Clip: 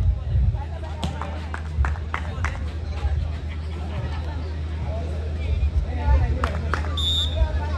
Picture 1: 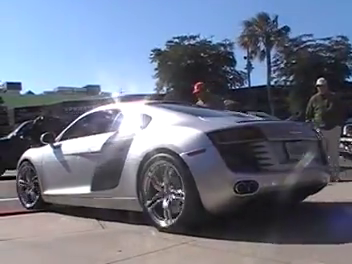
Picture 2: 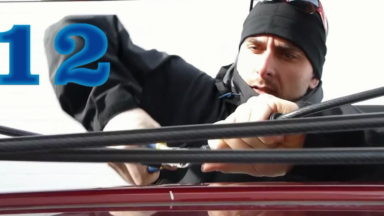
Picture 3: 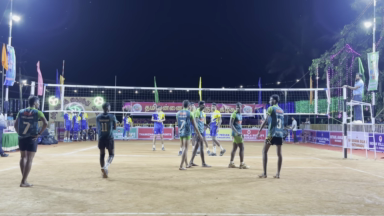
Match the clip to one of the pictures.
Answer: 3